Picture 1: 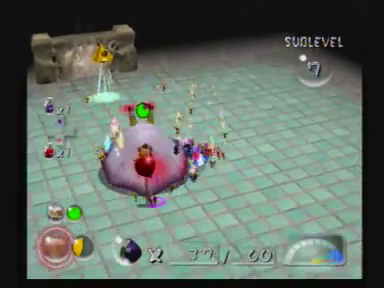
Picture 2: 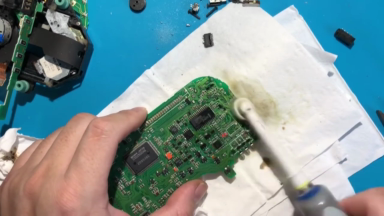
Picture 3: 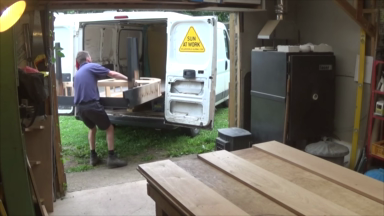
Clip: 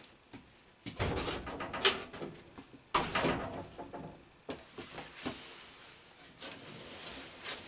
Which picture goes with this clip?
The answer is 3